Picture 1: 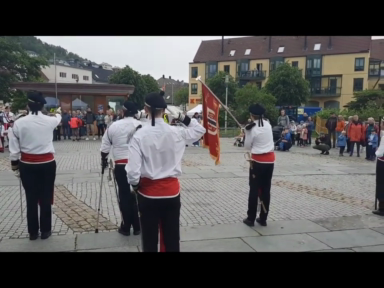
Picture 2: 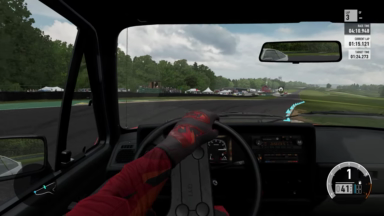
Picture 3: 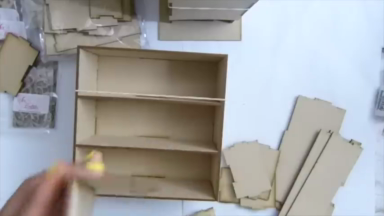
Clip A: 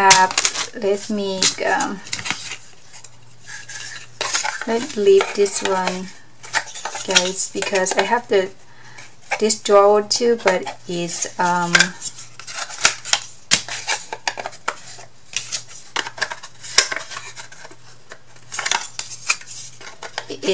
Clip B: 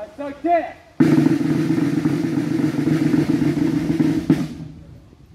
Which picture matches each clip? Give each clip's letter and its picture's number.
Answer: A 3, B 1